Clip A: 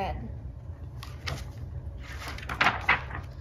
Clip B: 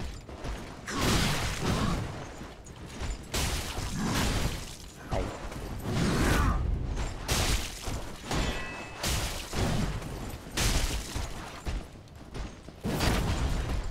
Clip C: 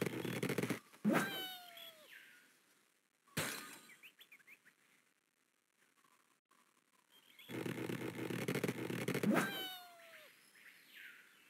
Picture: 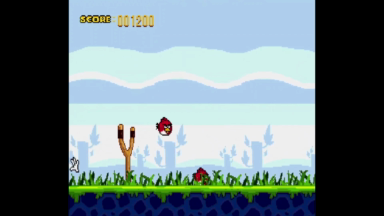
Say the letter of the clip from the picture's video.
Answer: C